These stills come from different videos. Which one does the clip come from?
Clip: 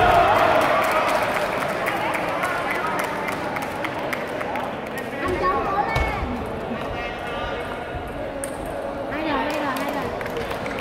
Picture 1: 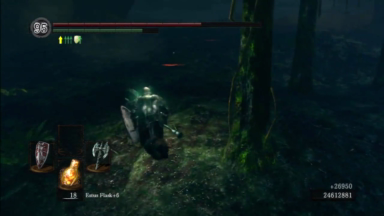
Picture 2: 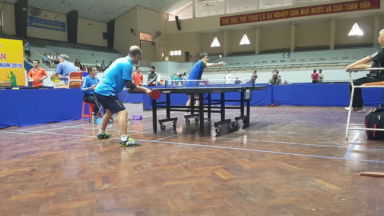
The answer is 2